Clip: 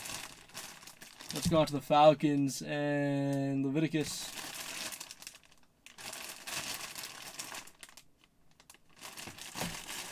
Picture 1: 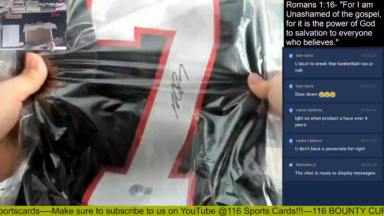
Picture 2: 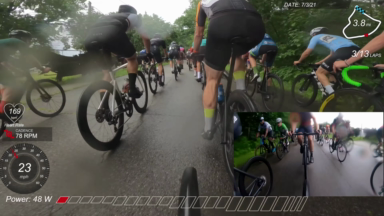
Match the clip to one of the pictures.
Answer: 1